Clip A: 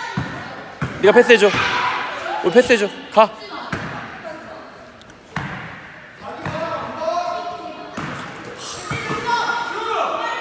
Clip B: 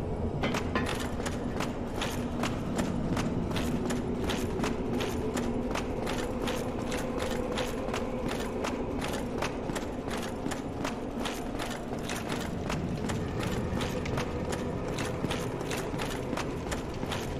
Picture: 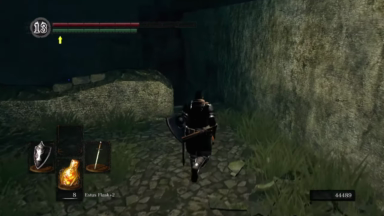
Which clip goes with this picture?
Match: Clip B